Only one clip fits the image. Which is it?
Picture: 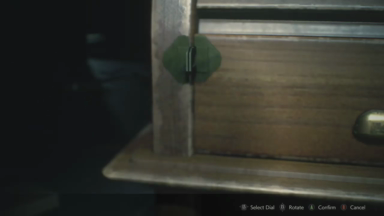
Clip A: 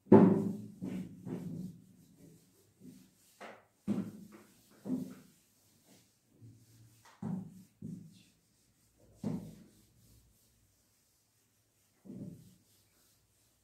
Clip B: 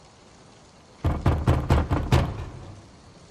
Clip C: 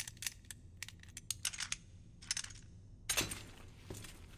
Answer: C